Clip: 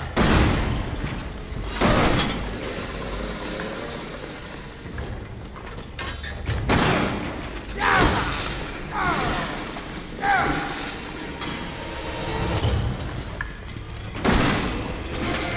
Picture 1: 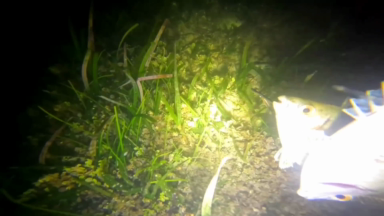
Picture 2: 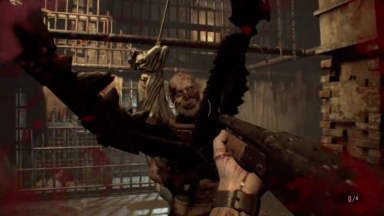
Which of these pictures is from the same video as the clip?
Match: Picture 2